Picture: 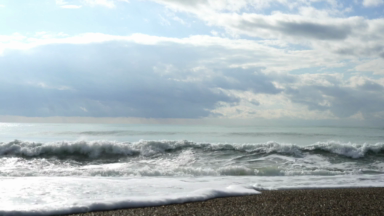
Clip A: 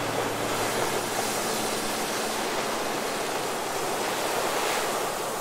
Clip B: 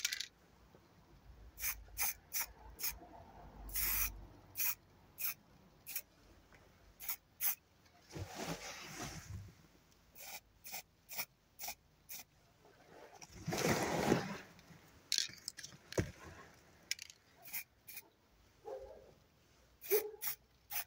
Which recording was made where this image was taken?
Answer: A